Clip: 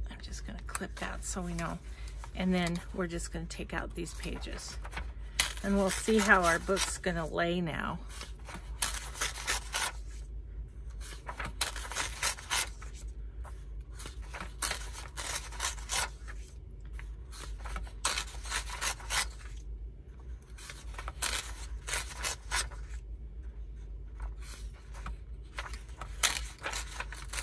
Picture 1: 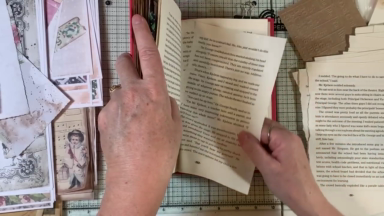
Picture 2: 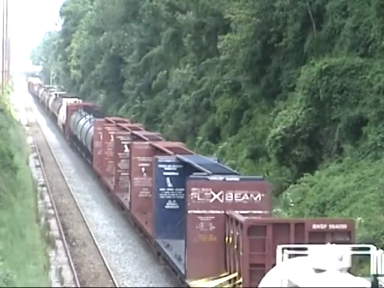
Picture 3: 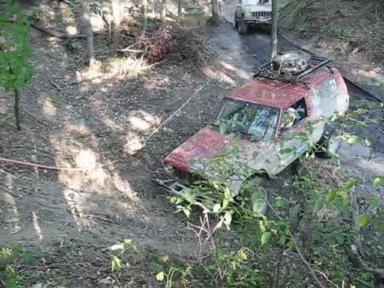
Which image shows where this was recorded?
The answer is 1